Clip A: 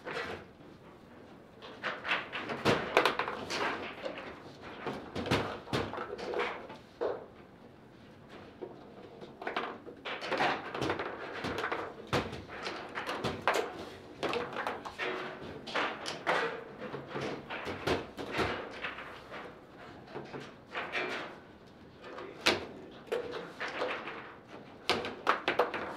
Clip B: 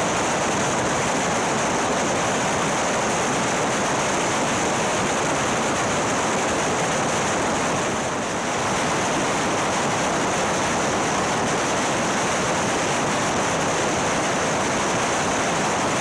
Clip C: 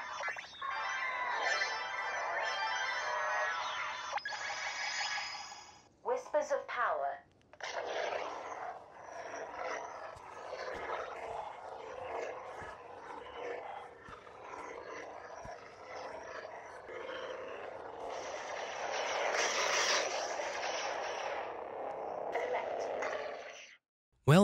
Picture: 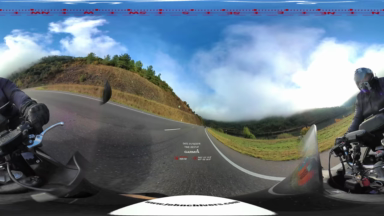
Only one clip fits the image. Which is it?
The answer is B